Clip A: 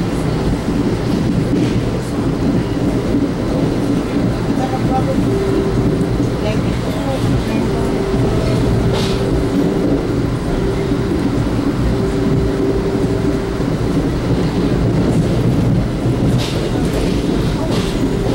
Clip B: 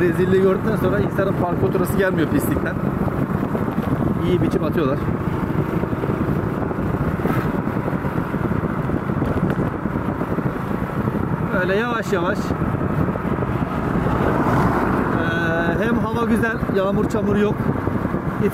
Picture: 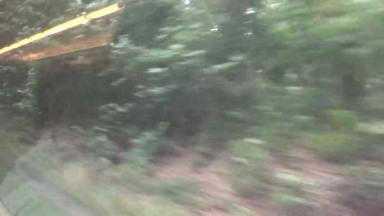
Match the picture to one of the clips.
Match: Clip A